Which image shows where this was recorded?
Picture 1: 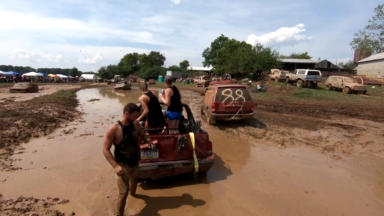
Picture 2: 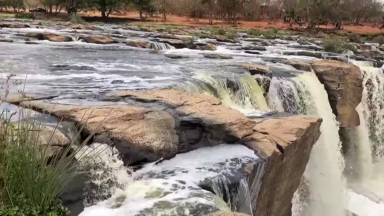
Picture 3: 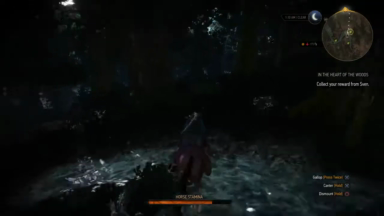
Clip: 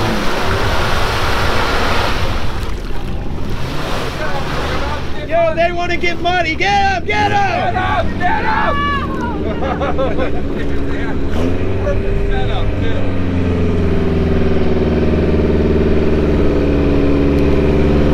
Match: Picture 1